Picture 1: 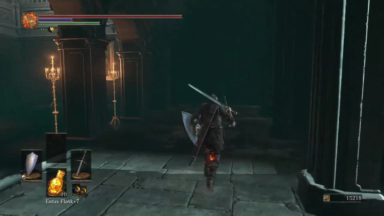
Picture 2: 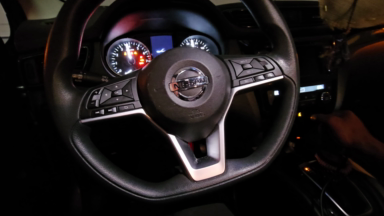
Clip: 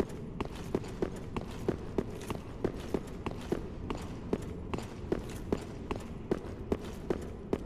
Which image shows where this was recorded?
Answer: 1